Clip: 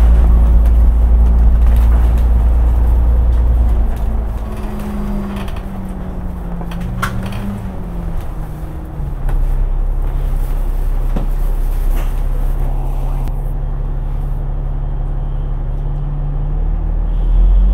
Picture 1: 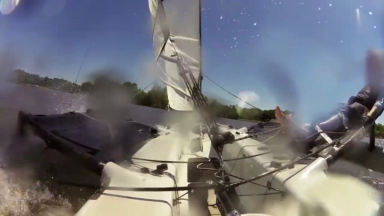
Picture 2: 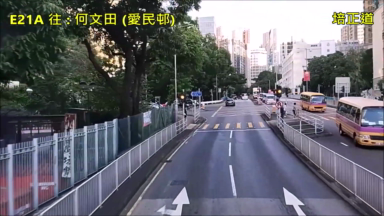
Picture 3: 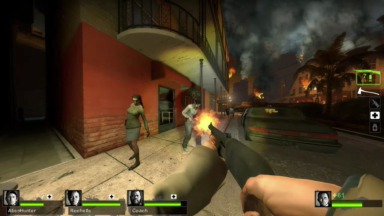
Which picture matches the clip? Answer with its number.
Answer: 2